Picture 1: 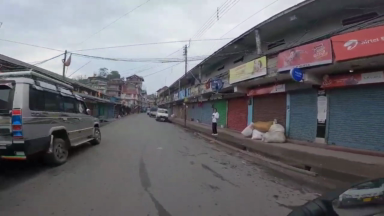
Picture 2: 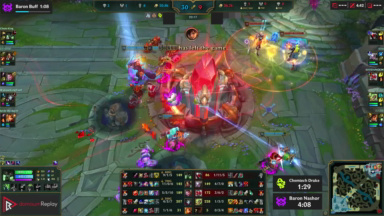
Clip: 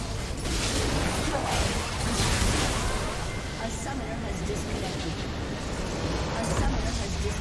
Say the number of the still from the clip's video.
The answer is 2